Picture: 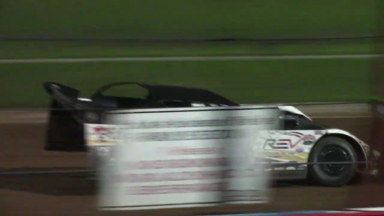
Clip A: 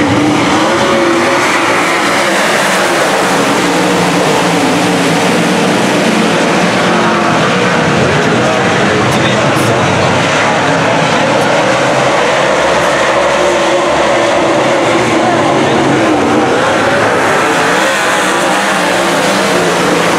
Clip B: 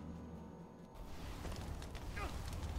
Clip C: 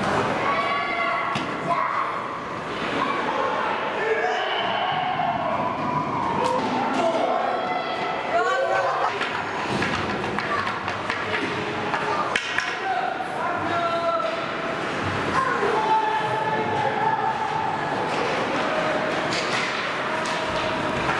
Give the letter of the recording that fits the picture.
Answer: A